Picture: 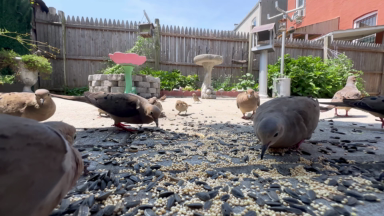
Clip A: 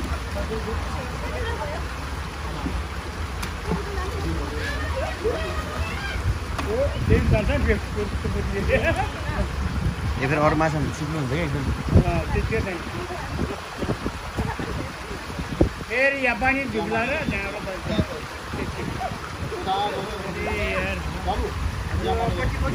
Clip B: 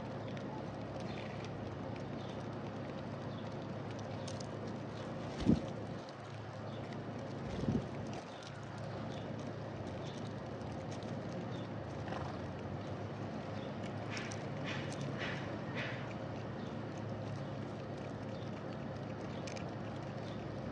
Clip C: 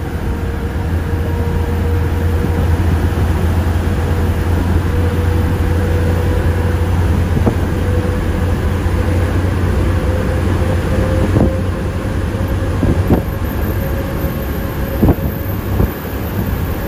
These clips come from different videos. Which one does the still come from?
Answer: B